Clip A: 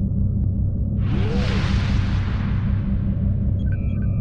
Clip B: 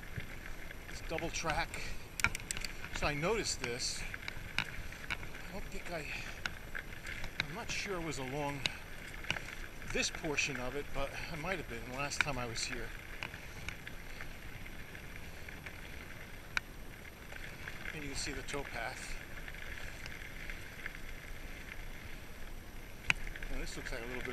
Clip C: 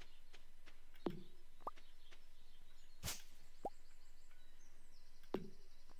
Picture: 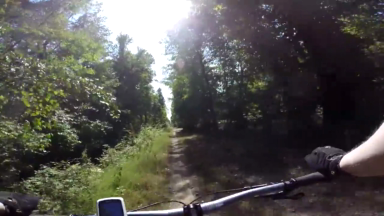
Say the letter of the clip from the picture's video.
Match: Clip B